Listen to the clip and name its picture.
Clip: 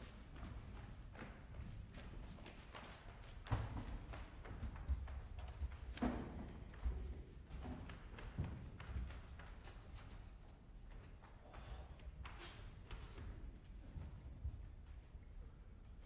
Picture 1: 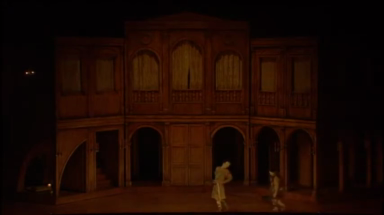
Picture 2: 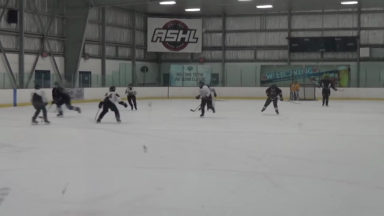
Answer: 1